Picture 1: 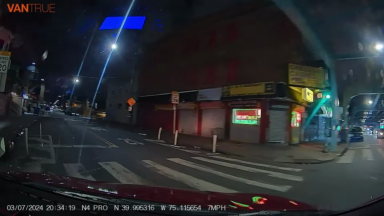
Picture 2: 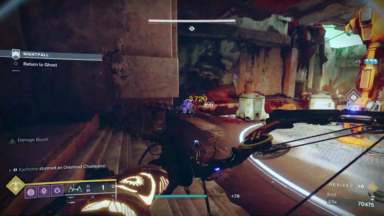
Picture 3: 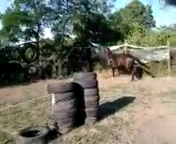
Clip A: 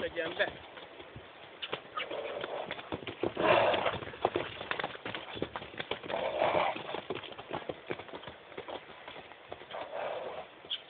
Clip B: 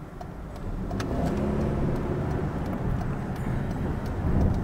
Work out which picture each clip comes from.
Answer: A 3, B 1